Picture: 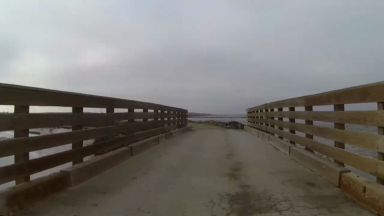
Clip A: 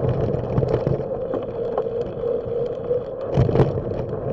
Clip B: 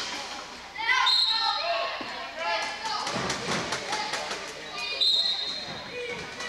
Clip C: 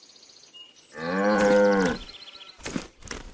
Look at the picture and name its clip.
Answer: A